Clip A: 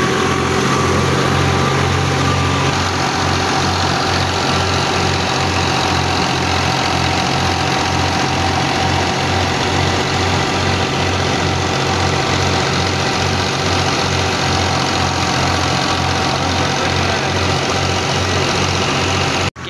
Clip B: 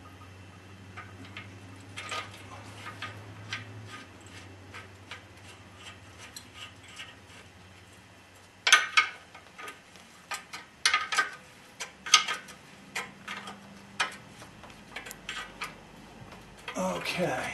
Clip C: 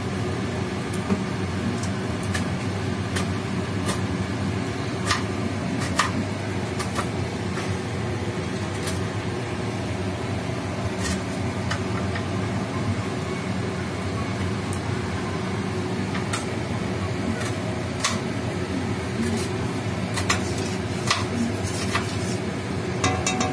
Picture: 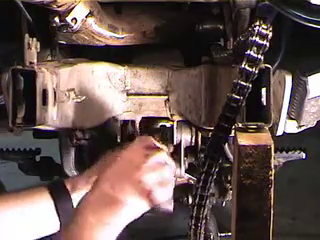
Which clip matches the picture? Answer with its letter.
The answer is B